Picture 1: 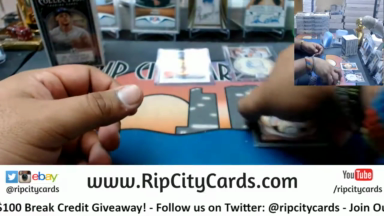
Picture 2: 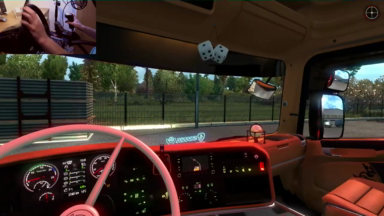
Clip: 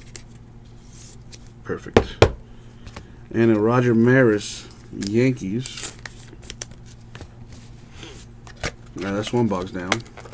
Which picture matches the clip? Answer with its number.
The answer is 1